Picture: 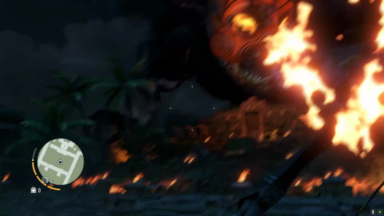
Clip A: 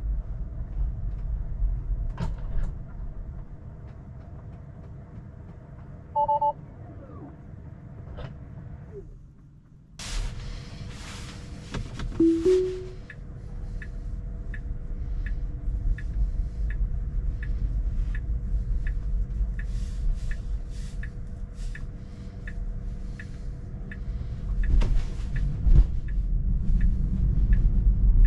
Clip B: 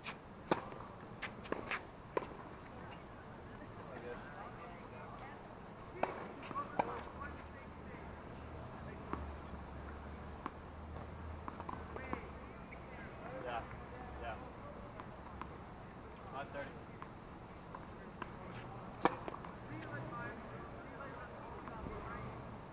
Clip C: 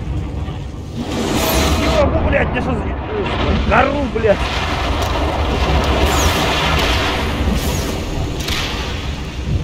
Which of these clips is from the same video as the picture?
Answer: C